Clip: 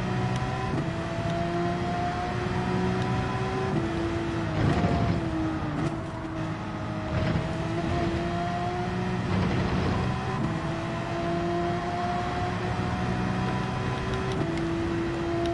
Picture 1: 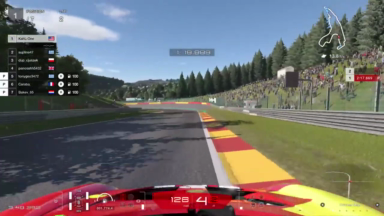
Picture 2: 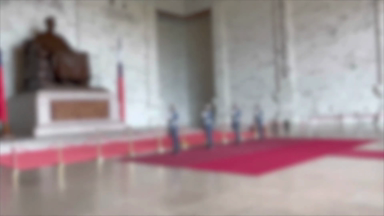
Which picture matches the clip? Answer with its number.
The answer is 1